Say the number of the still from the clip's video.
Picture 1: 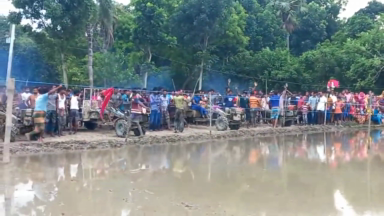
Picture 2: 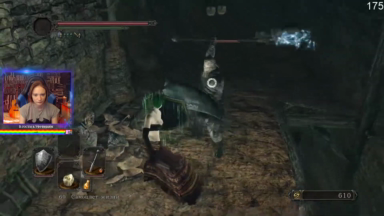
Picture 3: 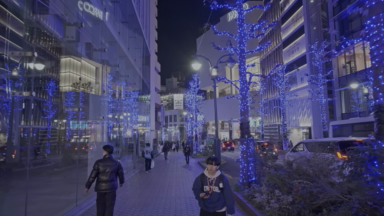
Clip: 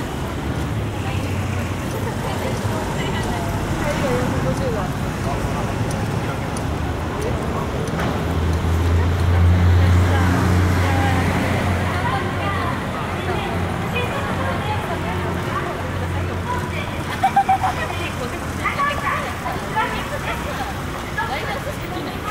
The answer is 3